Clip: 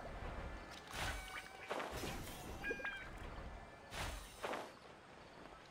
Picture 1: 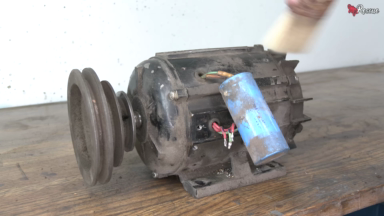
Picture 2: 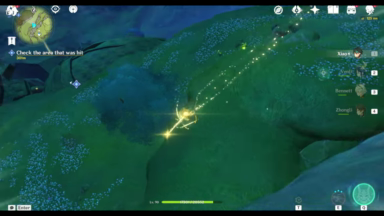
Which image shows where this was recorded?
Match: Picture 2